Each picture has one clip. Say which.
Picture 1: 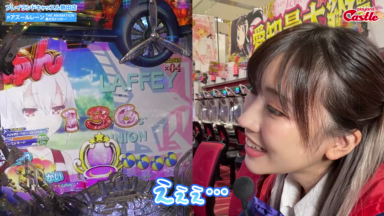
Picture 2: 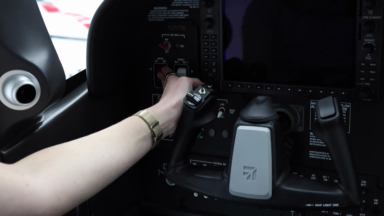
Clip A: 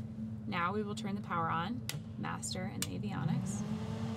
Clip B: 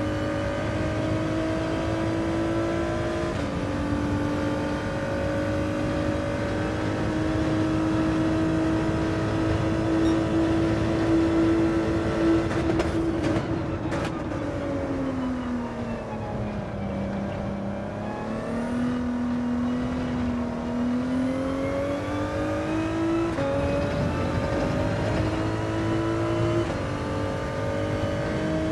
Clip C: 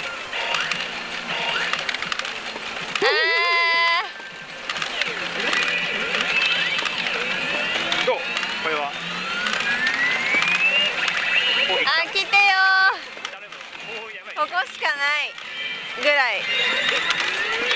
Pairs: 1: C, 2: A